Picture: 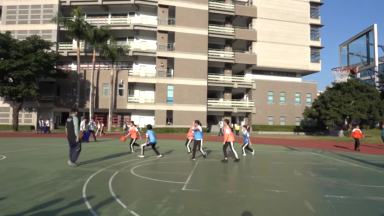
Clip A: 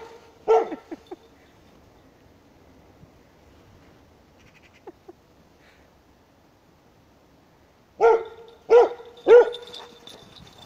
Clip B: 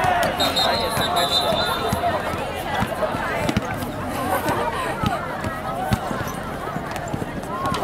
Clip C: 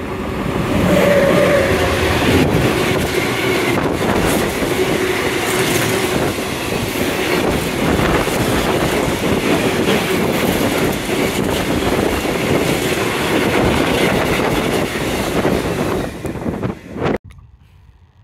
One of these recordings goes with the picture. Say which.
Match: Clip B